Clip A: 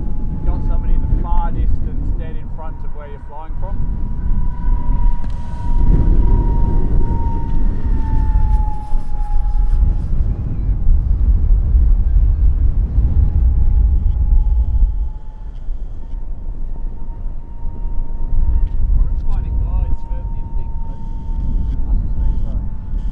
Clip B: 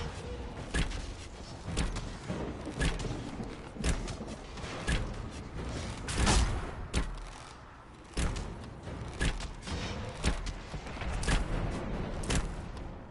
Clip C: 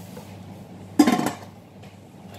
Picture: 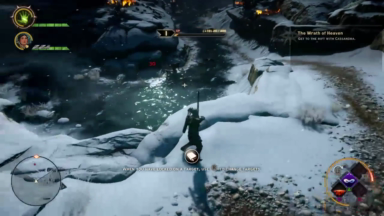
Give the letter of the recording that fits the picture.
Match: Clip B